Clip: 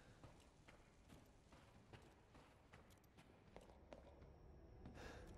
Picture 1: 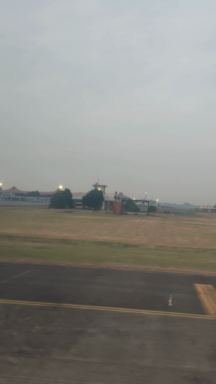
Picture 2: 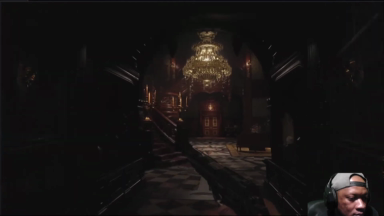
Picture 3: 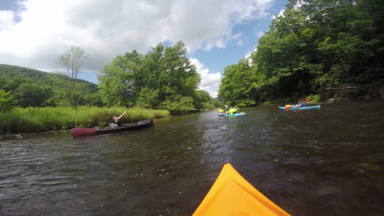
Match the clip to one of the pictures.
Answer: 2